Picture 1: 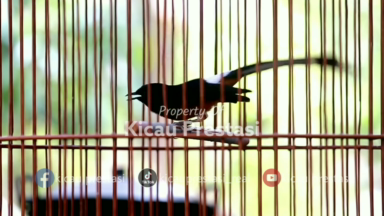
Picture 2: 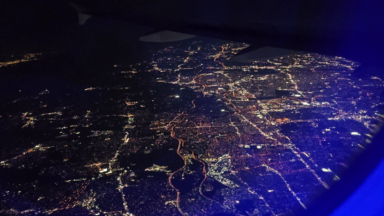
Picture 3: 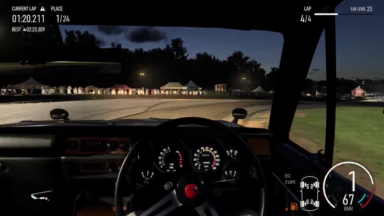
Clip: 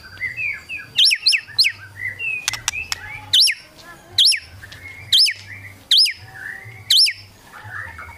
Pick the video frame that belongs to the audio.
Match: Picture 1